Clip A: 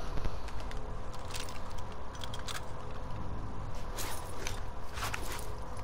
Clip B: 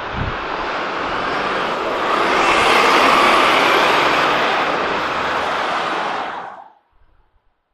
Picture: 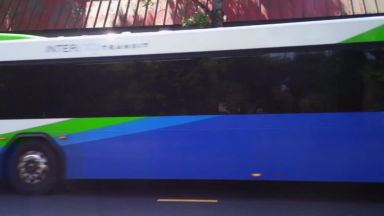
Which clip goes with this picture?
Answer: B